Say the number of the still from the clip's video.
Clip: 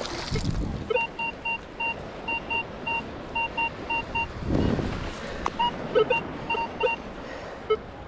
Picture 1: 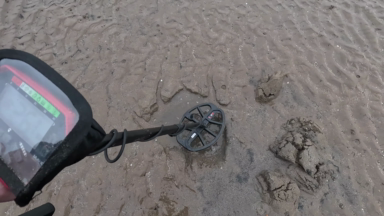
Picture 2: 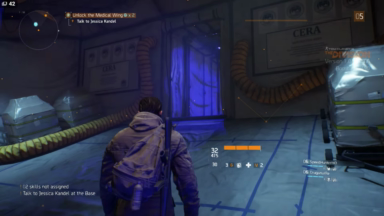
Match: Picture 1